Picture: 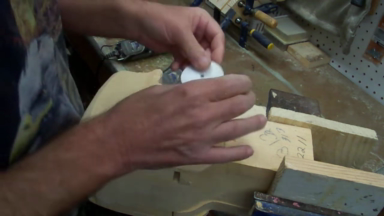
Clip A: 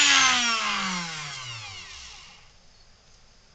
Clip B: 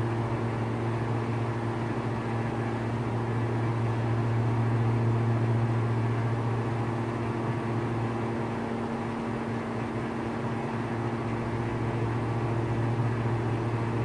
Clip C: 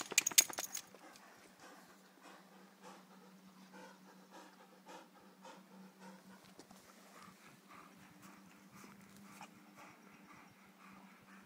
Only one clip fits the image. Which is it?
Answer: A